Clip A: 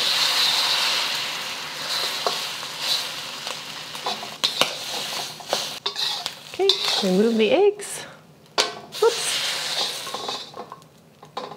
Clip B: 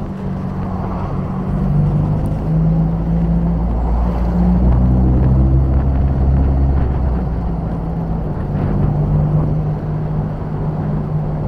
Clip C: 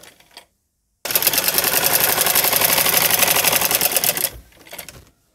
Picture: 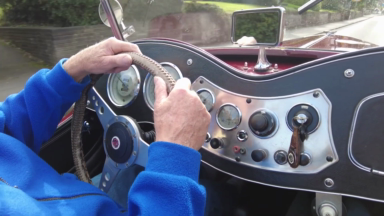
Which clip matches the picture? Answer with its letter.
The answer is B